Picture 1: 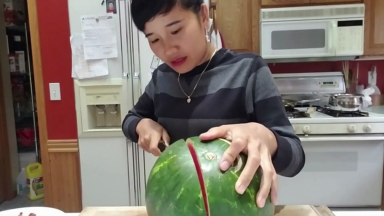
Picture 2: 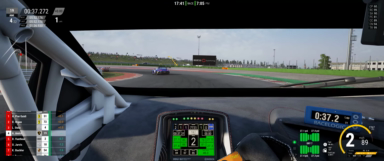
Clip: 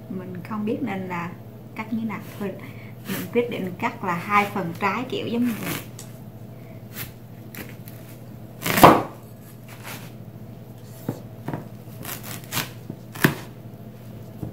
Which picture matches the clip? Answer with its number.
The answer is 1